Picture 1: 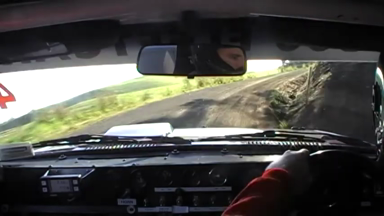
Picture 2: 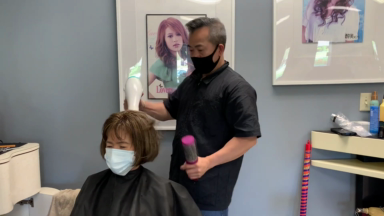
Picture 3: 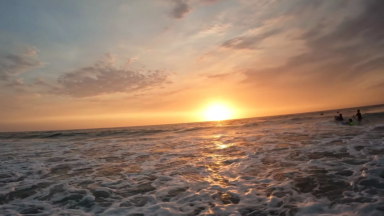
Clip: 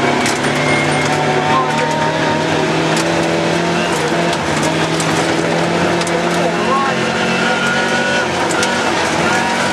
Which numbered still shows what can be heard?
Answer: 1